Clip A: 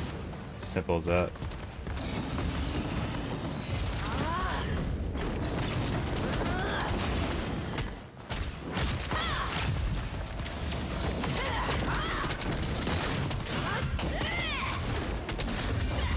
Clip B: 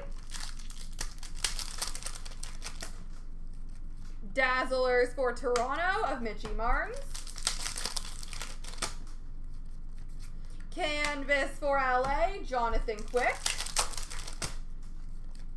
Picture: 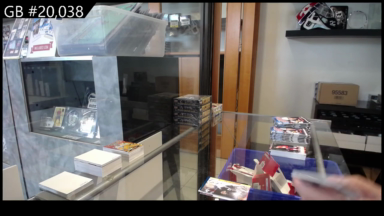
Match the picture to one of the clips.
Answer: B